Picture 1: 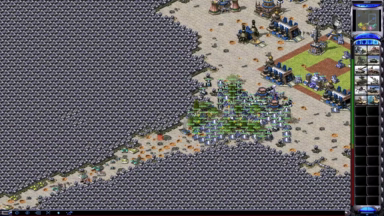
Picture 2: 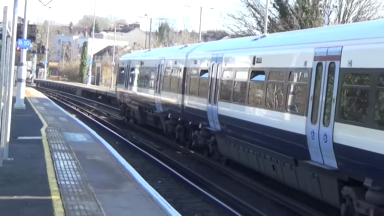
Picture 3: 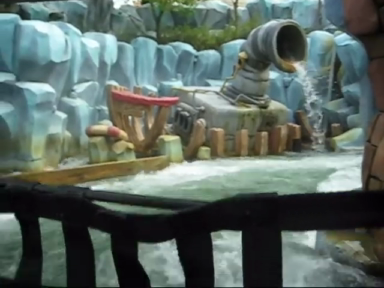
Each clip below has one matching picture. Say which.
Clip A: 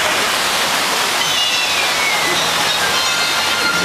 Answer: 3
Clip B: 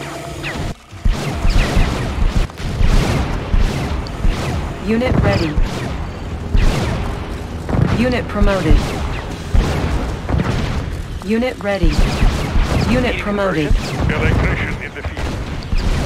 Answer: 1